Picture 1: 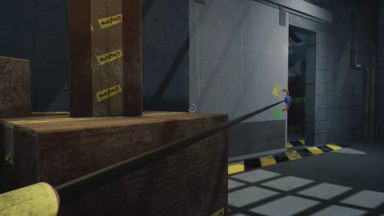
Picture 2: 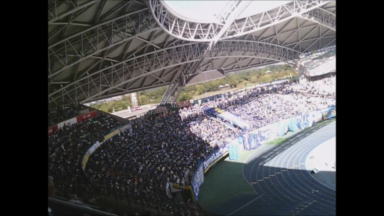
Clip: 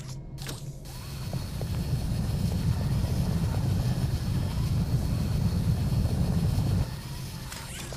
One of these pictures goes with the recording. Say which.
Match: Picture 1